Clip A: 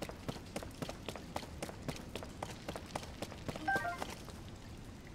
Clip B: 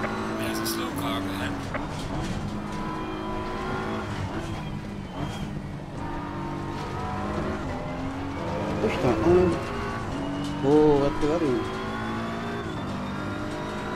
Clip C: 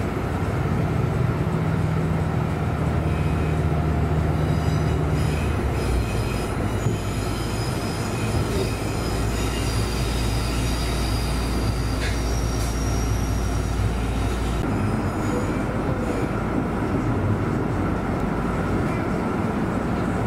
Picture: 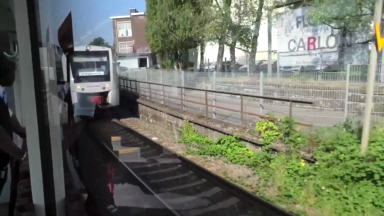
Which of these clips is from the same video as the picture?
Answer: C